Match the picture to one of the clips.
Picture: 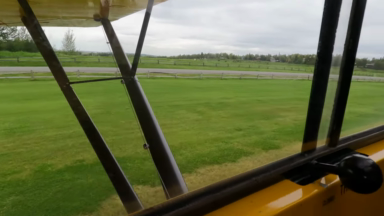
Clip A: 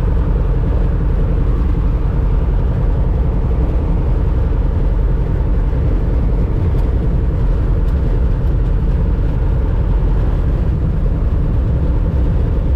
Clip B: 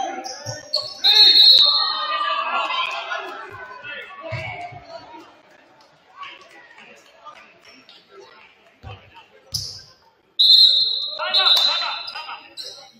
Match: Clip A